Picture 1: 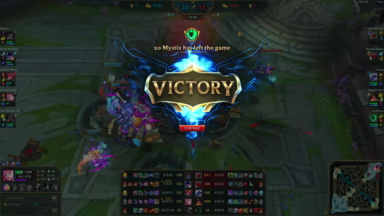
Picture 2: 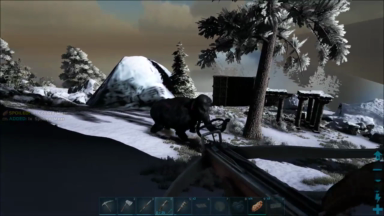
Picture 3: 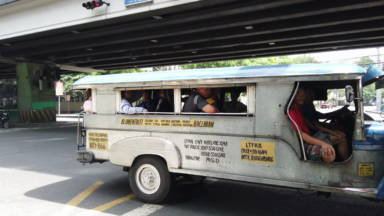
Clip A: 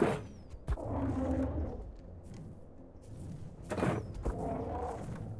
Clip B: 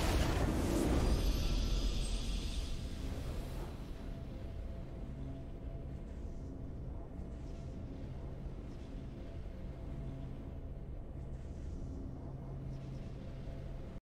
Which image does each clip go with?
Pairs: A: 2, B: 1